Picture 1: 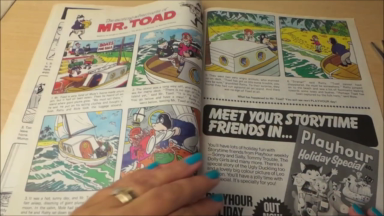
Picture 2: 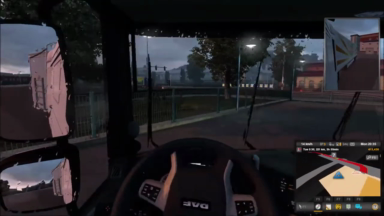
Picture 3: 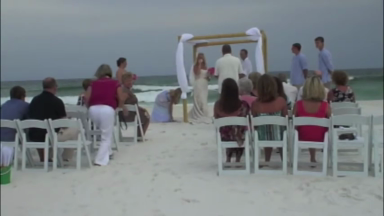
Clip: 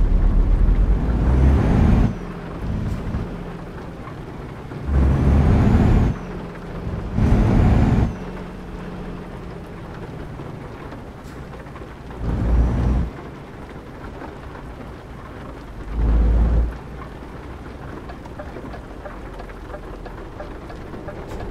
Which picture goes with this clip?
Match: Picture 2